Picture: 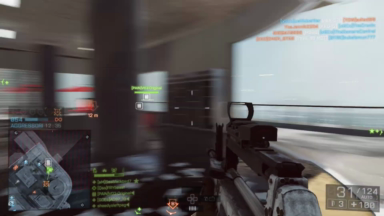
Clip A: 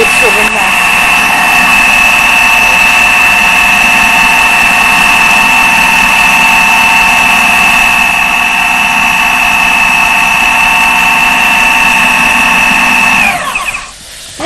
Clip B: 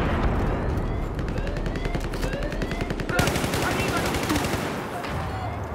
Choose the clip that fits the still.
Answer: B